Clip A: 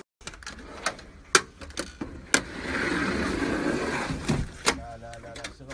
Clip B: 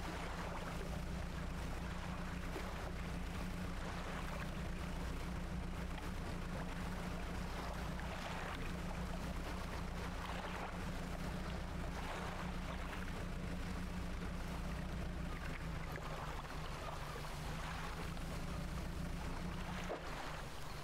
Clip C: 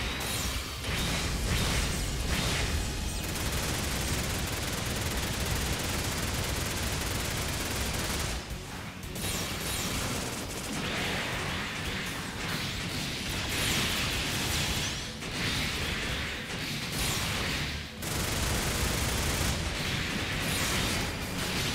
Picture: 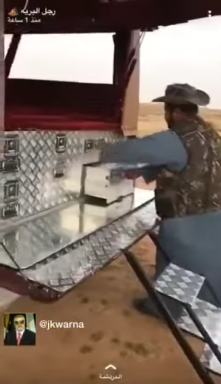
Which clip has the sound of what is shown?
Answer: A